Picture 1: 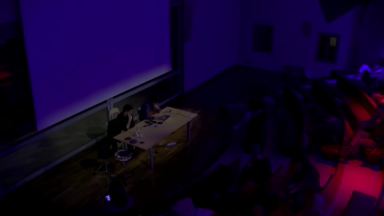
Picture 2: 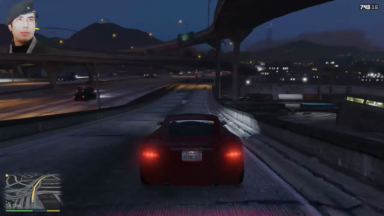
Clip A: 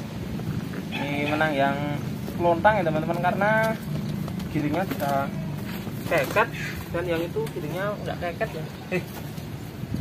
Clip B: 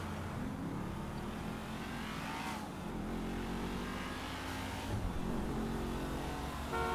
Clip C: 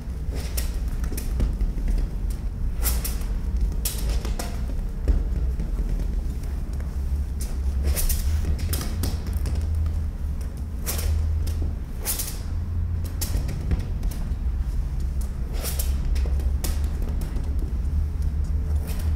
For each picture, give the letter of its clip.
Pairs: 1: C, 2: B